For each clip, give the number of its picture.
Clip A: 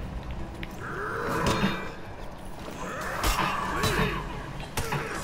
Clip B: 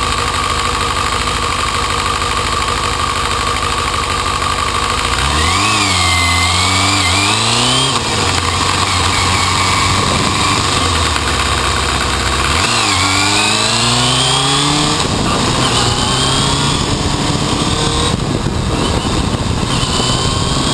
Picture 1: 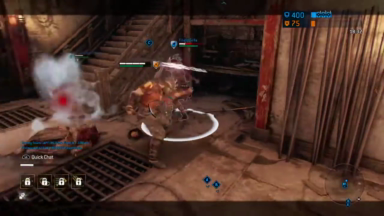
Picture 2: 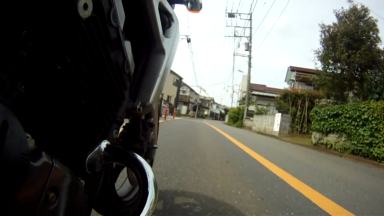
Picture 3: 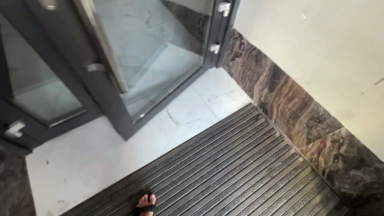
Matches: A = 1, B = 2